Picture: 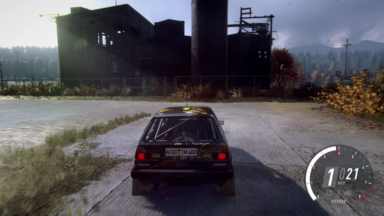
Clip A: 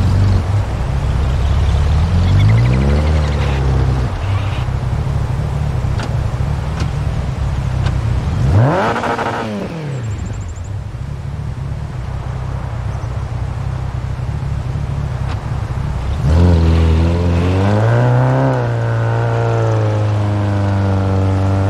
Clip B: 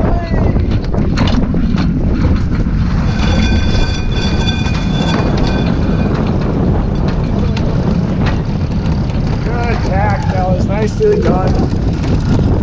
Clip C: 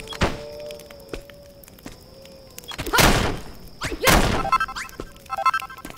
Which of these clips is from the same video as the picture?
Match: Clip A